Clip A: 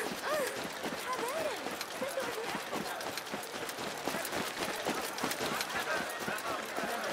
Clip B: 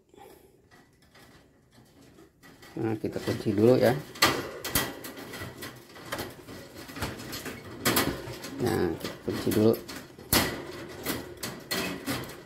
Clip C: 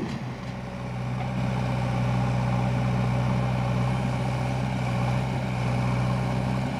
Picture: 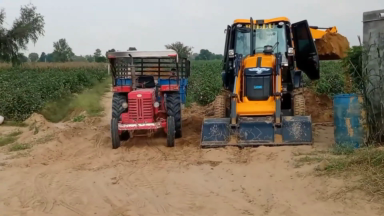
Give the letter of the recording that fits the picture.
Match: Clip C